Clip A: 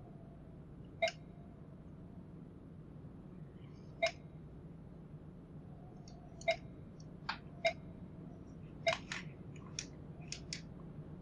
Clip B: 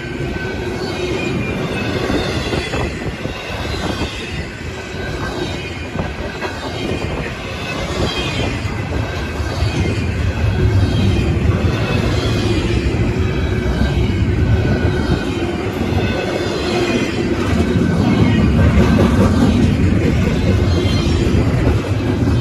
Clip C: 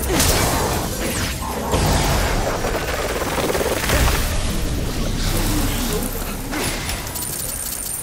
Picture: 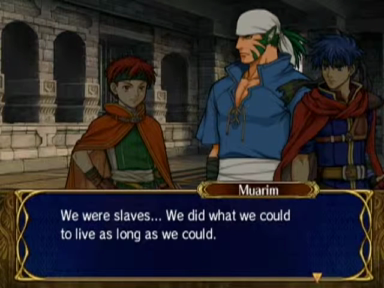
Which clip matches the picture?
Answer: A